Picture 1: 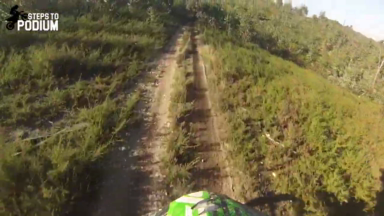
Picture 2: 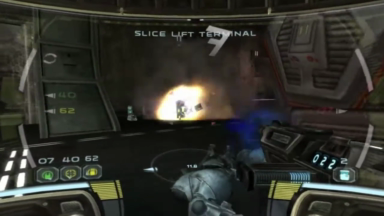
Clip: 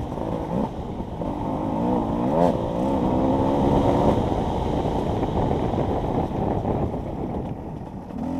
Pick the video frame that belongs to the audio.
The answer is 1